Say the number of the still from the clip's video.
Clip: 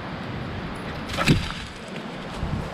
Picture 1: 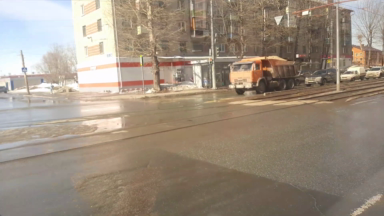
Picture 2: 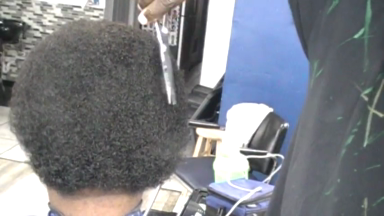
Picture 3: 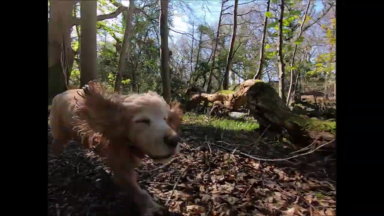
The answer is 3